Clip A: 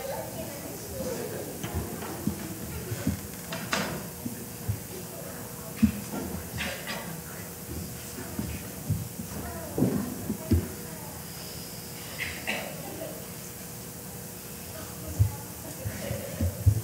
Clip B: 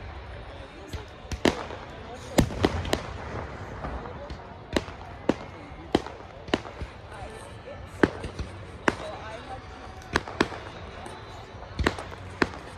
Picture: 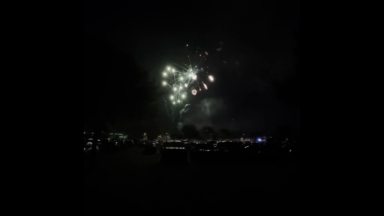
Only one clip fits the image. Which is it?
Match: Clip B